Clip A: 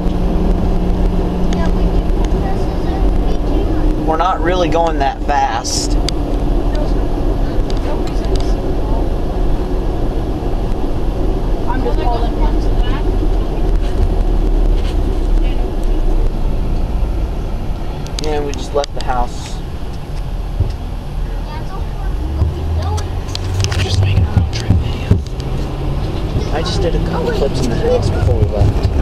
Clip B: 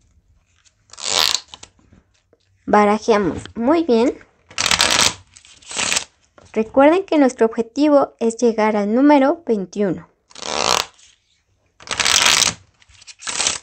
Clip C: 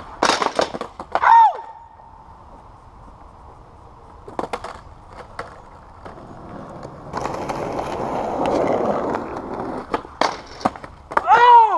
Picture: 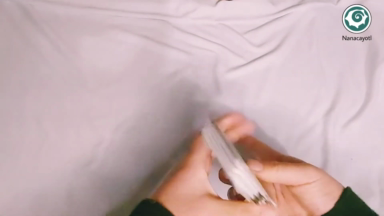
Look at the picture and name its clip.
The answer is B